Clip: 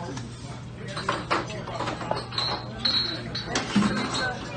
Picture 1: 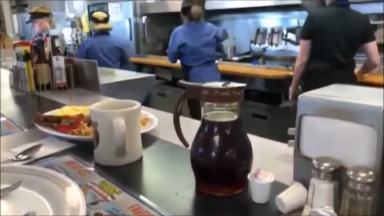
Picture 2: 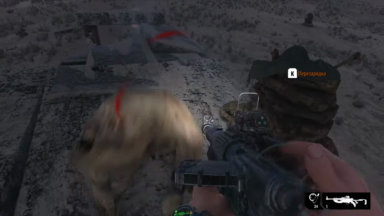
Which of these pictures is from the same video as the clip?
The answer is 1